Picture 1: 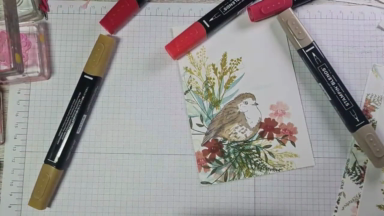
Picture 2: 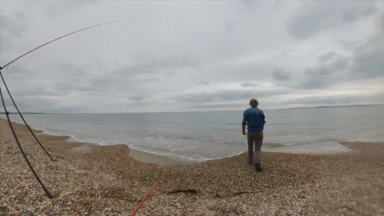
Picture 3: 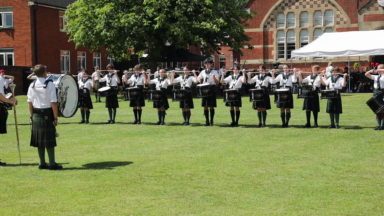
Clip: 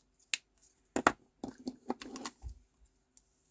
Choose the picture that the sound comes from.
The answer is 1